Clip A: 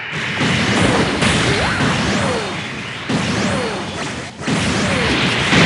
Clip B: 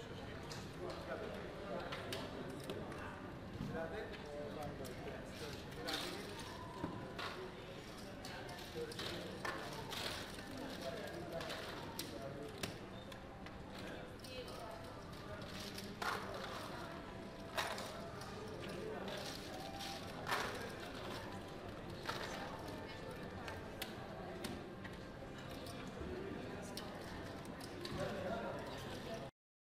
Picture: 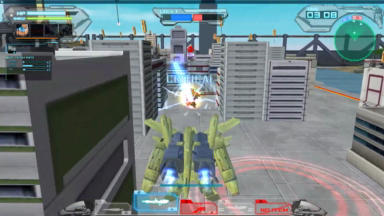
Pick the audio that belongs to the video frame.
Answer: A